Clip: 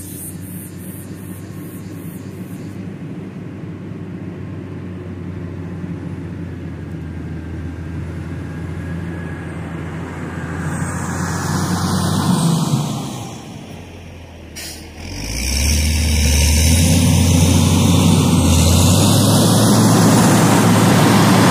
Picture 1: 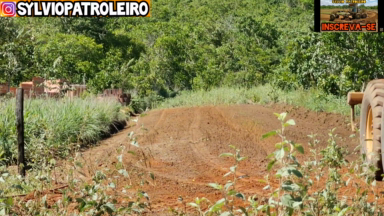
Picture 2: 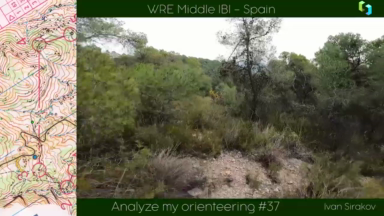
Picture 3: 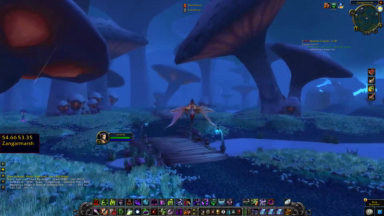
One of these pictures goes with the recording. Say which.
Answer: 1